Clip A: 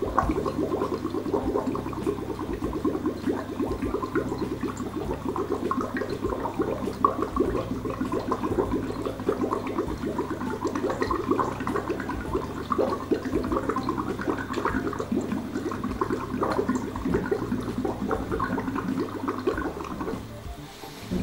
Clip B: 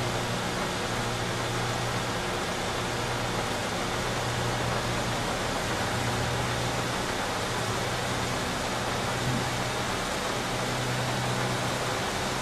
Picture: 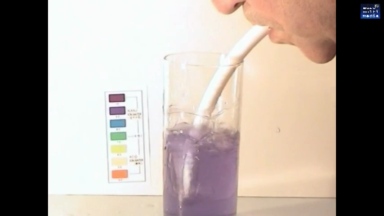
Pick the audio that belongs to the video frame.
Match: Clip A